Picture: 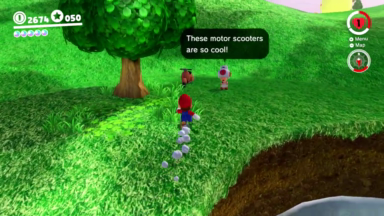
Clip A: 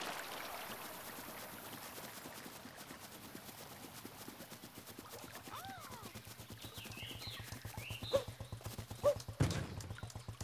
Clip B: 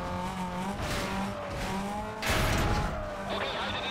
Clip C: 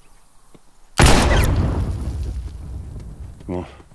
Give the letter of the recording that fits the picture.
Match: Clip A